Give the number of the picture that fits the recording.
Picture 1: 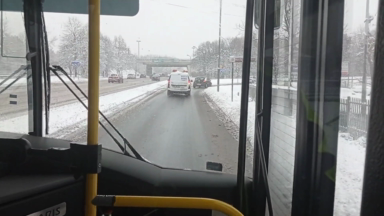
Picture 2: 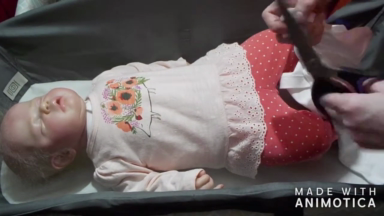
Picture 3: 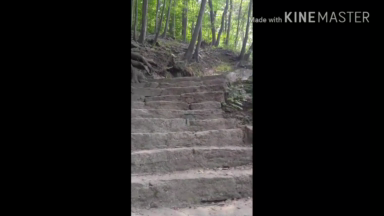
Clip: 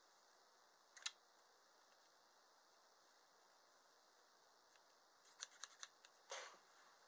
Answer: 2